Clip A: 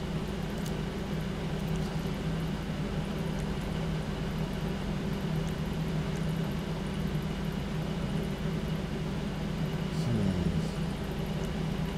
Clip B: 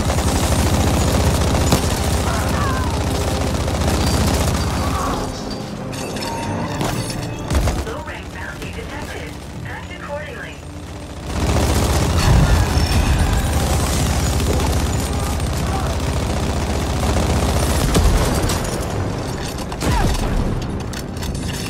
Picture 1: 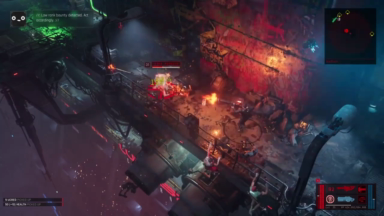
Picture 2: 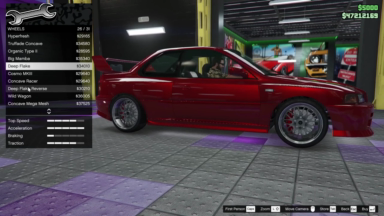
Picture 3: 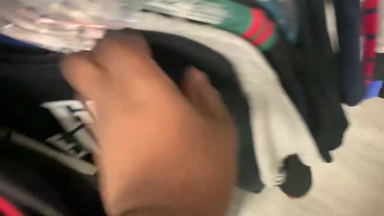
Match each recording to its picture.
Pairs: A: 2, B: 1